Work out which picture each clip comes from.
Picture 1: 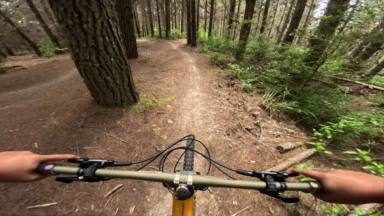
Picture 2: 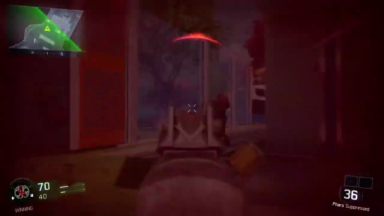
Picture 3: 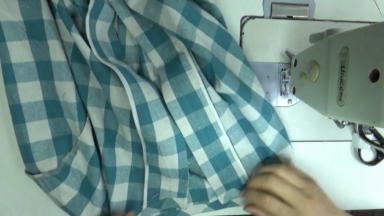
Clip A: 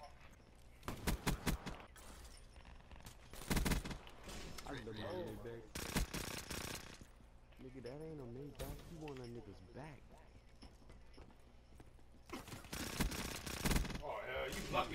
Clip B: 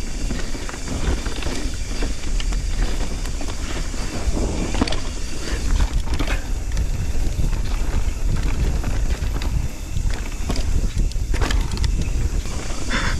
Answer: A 2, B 1